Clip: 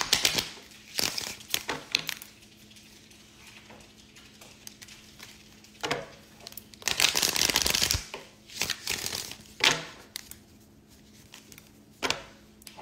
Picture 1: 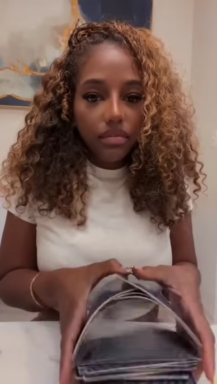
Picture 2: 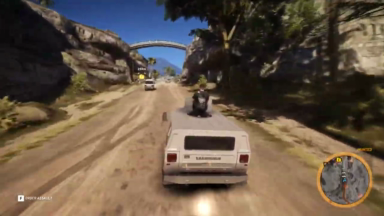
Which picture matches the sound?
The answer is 1